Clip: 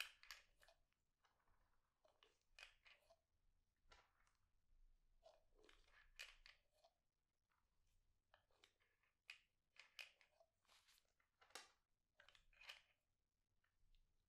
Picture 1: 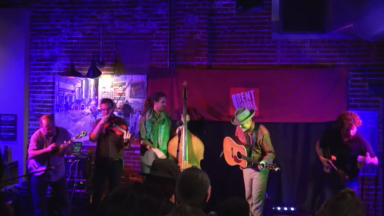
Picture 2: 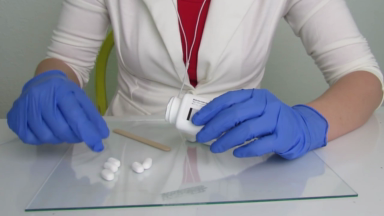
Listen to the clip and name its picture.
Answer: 2